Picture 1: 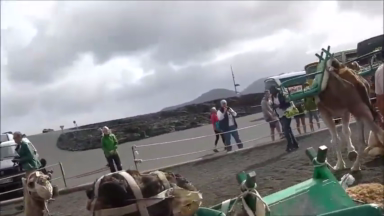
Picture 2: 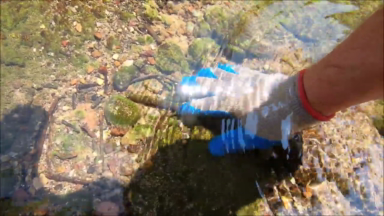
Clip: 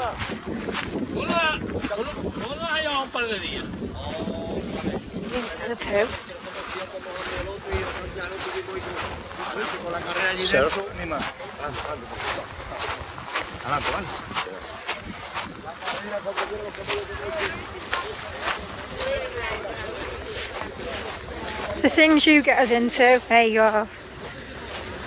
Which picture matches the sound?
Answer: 1